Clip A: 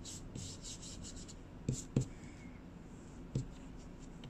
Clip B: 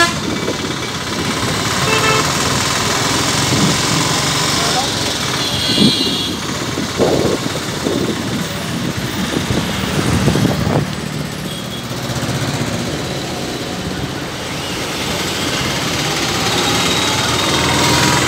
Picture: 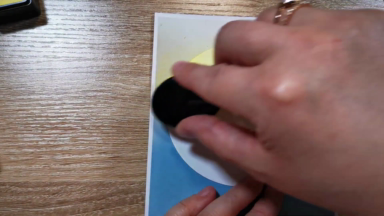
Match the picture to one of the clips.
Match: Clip A